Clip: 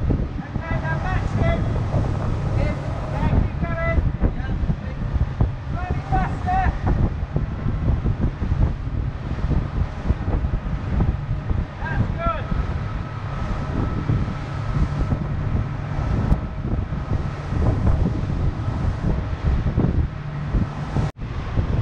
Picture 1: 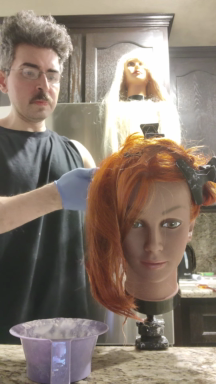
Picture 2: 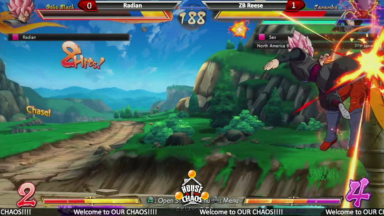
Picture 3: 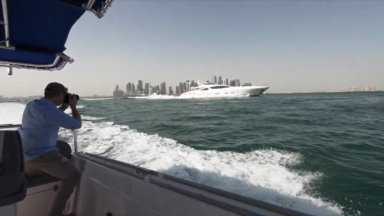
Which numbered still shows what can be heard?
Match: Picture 3